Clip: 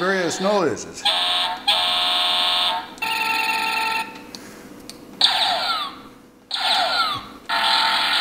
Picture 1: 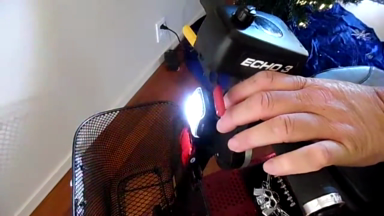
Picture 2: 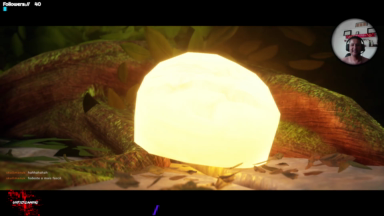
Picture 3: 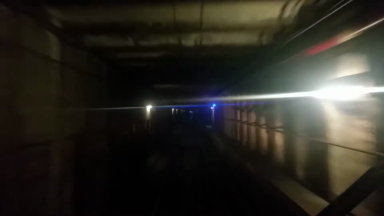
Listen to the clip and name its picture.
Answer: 1